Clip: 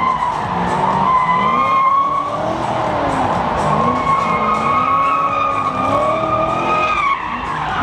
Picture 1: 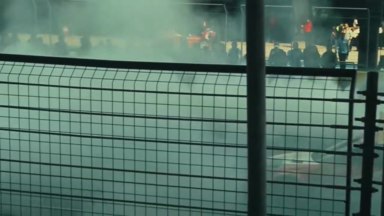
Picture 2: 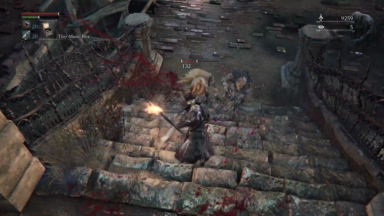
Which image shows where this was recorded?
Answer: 1